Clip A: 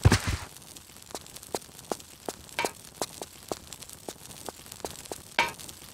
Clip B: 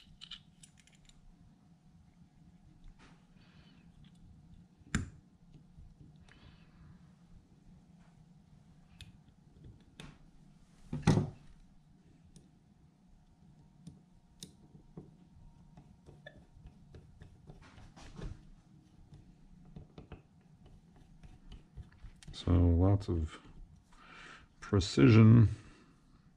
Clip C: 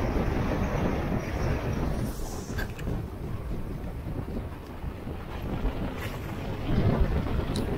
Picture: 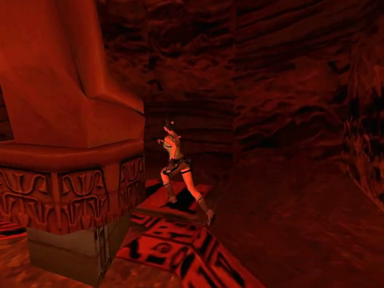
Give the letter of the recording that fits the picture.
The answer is A